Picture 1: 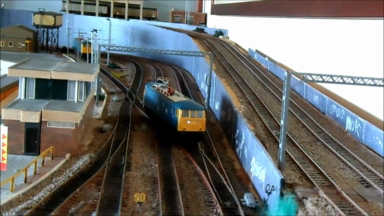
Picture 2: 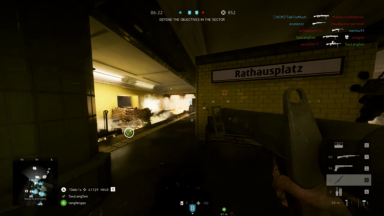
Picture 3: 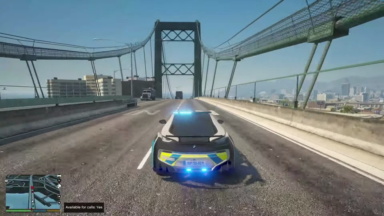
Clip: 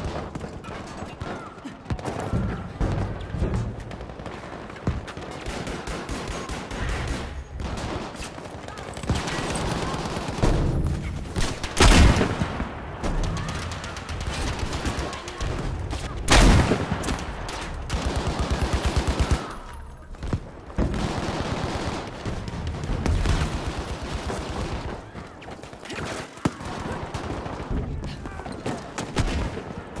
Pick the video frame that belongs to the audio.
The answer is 2